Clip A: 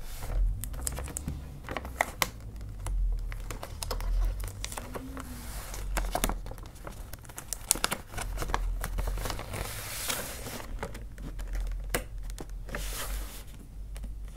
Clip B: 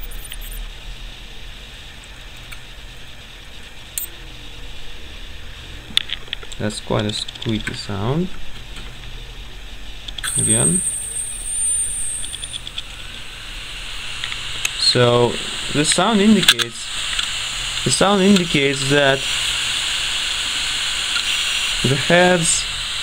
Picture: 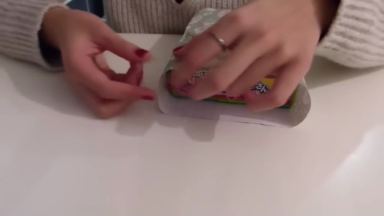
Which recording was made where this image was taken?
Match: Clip A